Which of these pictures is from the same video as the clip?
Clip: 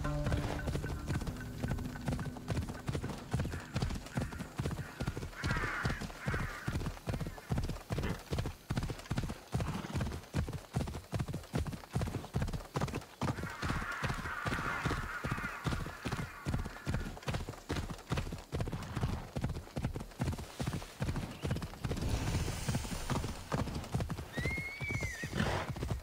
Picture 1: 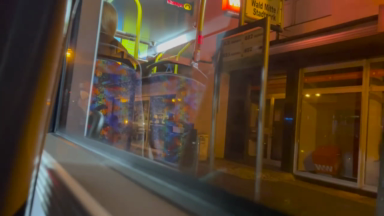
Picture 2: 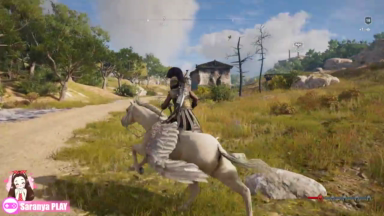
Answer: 2